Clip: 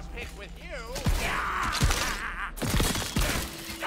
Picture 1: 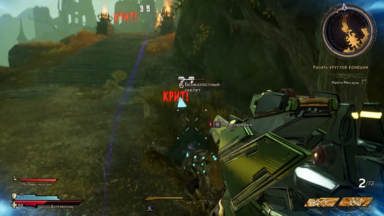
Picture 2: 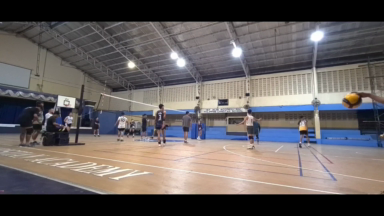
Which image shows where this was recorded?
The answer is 1